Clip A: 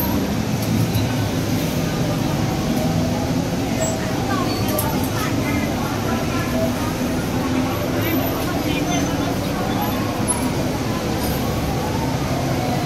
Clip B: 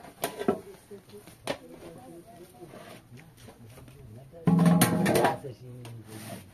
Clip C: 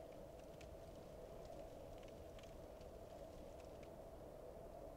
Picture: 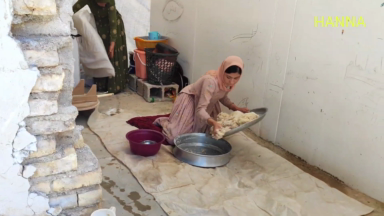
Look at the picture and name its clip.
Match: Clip B